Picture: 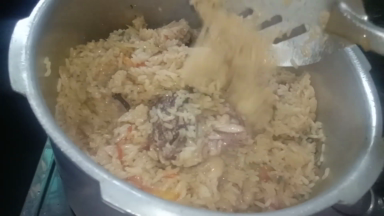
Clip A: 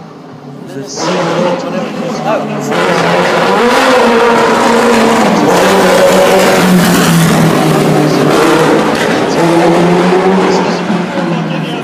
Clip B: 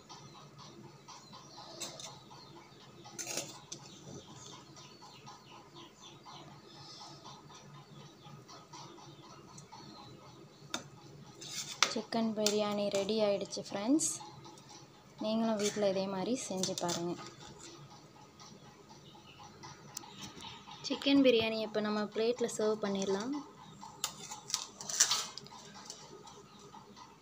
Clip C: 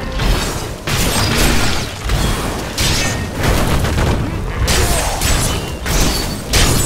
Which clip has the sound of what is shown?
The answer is B